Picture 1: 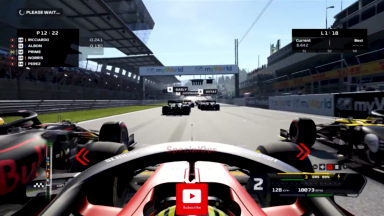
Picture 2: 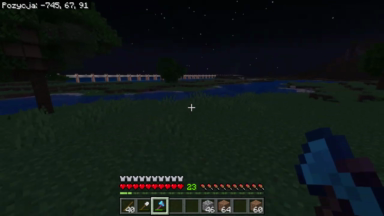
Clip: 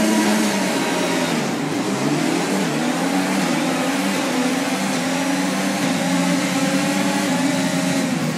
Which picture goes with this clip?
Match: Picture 1